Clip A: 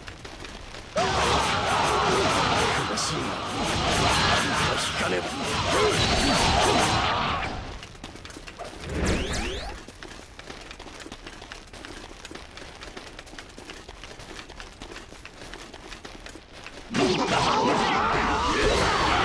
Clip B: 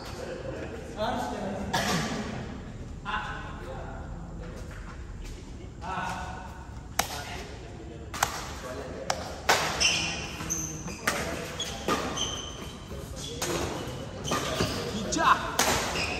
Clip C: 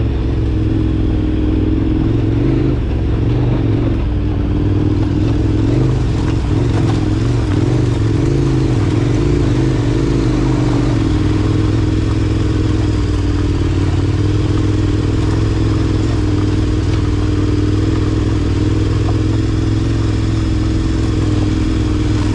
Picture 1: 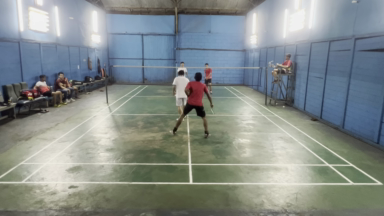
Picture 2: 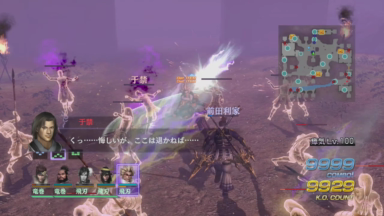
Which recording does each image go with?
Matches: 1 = B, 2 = A